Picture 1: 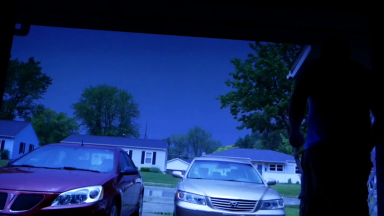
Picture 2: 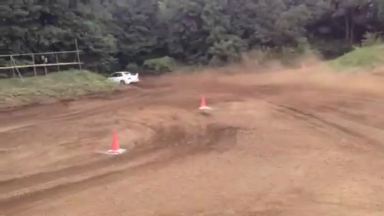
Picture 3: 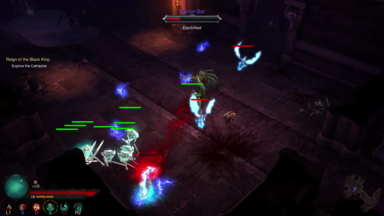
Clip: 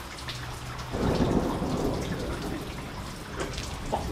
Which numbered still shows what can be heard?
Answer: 1